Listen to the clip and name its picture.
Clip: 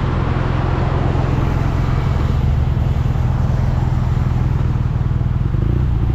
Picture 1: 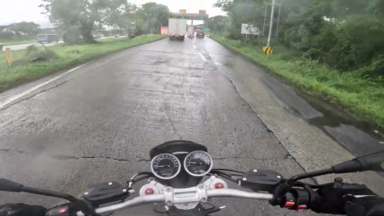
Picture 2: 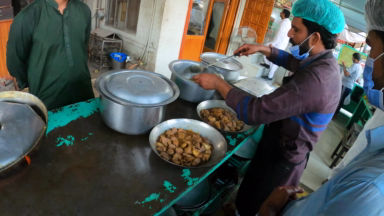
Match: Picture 1